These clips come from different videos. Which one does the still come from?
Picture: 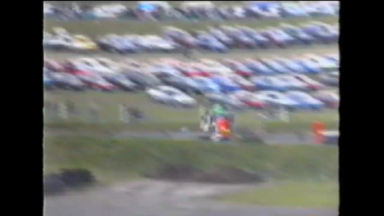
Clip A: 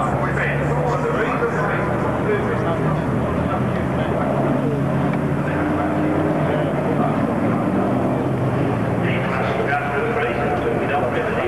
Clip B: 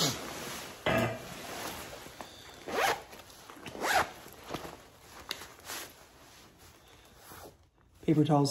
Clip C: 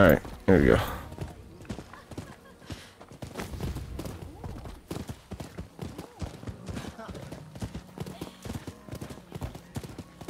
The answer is A